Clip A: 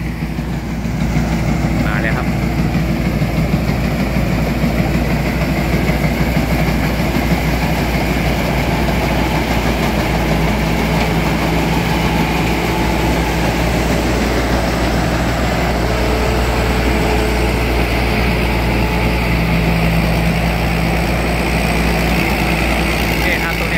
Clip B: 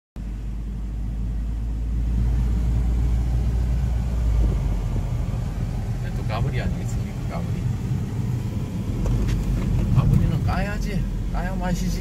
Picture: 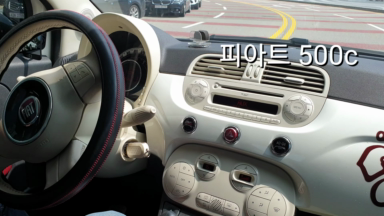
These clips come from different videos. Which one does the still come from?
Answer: B